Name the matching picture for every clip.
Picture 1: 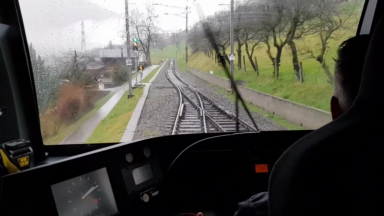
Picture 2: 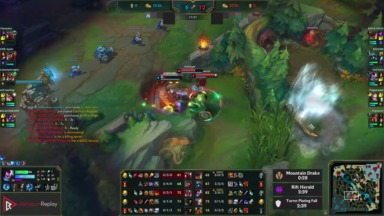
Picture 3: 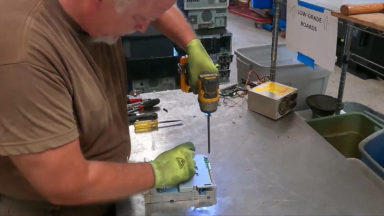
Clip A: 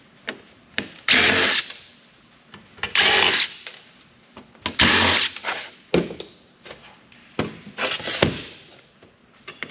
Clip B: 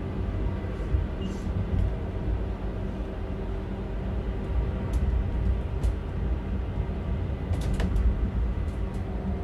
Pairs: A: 3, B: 1